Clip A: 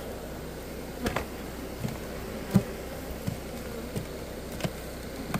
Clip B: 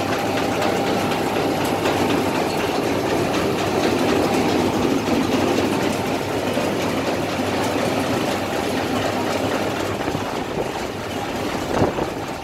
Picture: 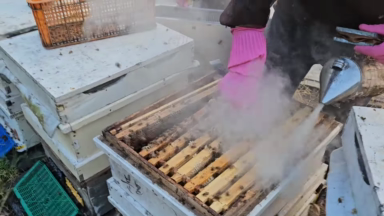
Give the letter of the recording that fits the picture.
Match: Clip A